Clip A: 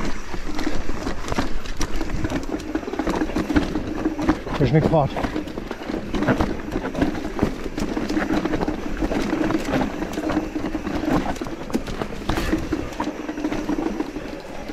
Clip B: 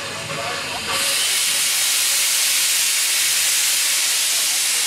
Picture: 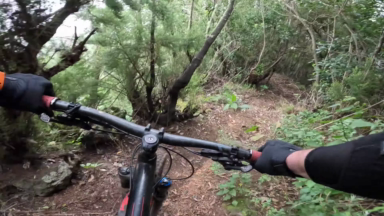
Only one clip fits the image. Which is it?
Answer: A